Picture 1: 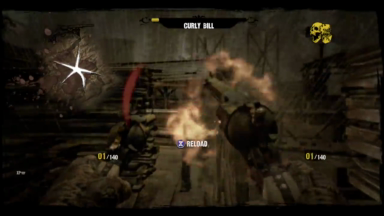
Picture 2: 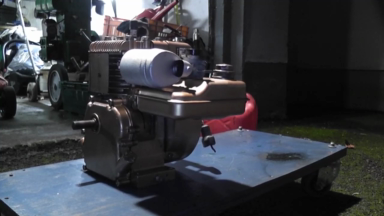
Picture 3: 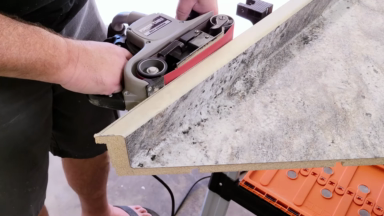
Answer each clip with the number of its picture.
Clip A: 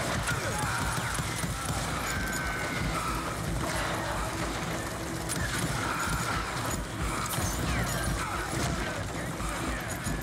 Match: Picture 1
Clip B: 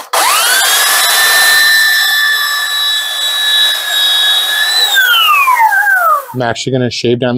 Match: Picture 3